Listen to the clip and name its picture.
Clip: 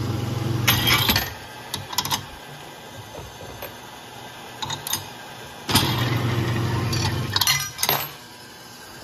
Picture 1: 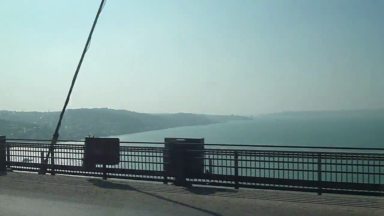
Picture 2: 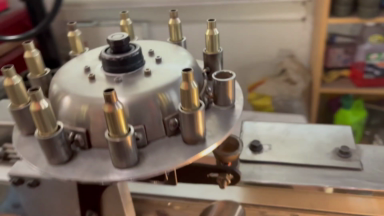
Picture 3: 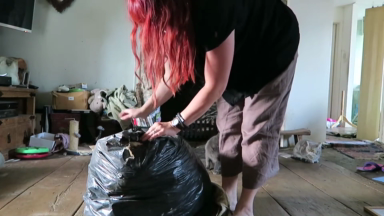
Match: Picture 2